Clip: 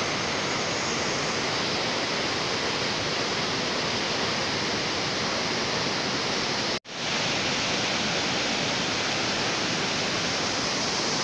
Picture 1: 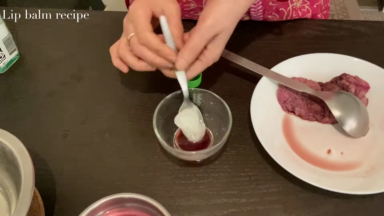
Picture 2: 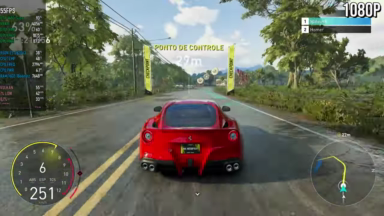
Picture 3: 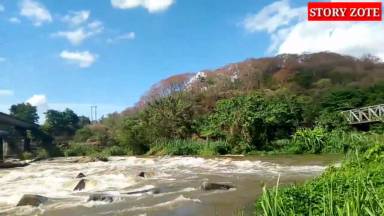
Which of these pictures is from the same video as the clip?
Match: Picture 3